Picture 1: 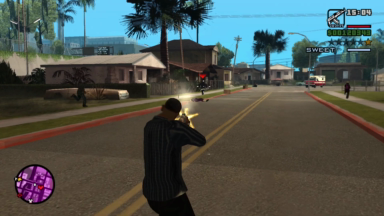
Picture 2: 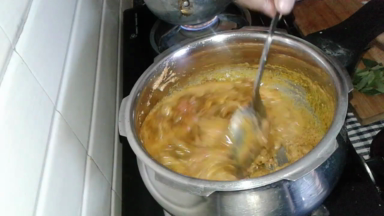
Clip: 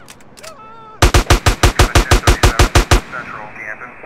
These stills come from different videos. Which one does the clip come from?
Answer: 1